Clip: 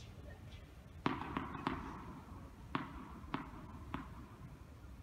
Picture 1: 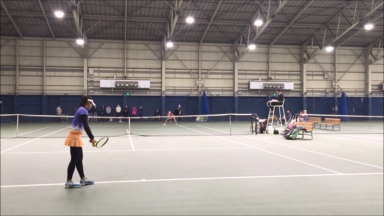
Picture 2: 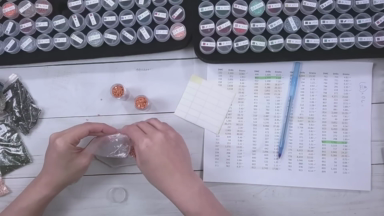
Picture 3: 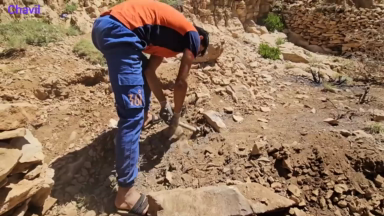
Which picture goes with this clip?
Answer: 1